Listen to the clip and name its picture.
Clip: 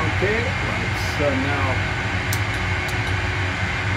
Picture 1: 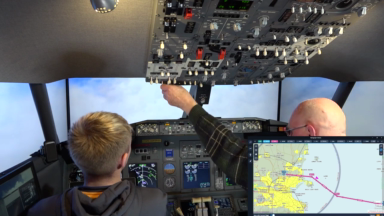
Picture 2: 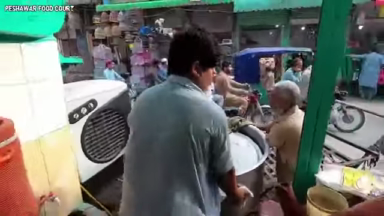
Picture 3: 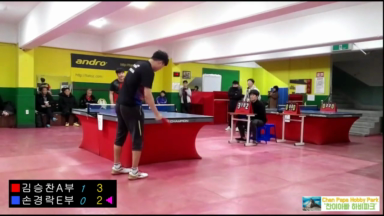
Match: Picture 1